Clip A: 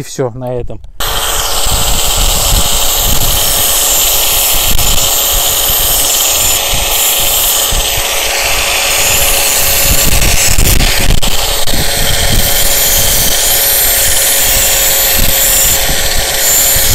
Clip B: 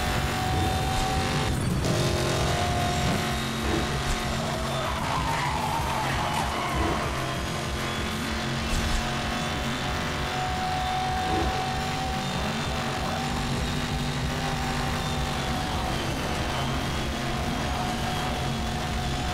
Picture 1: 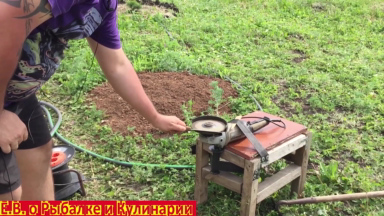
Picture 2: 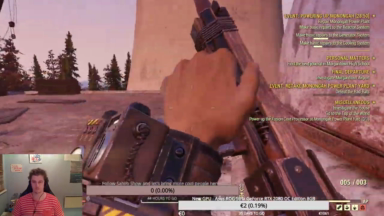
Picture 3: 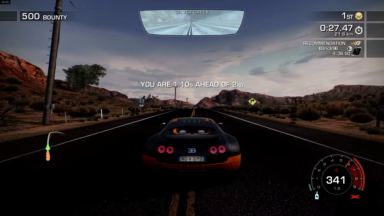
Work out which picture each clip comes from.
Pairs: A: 1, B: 3